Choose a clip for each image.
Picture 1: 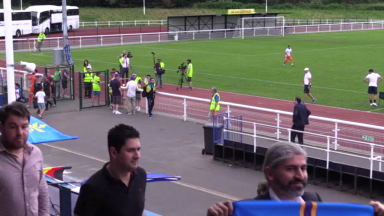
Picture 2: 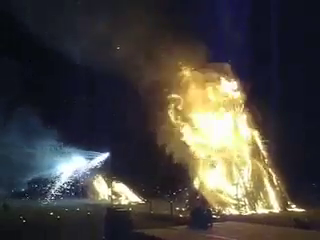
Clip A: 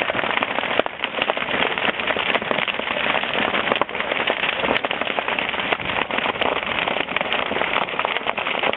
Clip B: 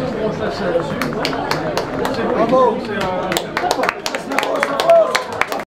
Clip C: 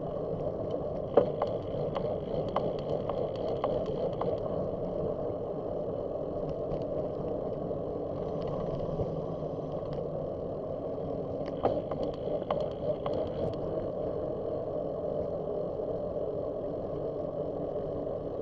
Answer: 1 B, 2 A